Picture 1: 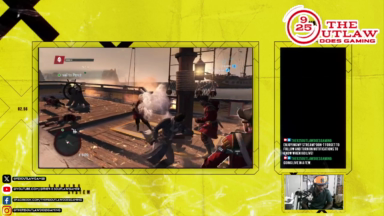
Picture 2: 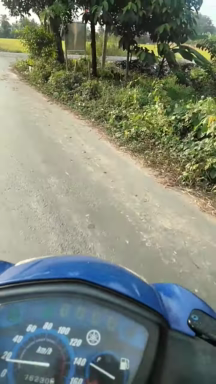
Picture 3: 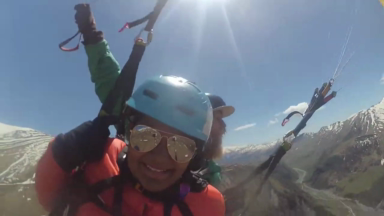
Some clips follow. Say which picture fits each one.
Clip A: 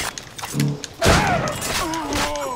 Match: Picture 1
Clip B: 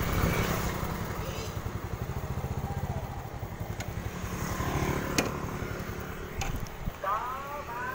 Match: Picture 2